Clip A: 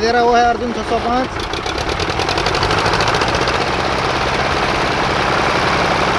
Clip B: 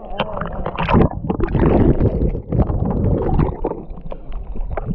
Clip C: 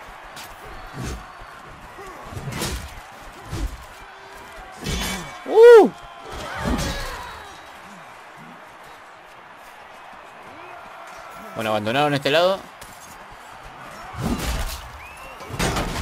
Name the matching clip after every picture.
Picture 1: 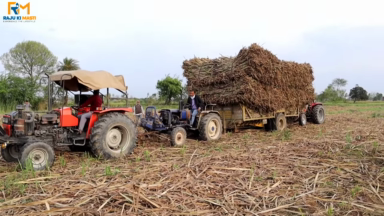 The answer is A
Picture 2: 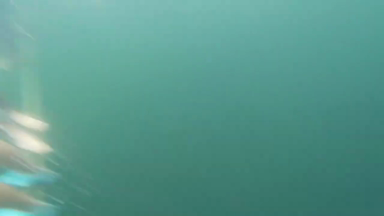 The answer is B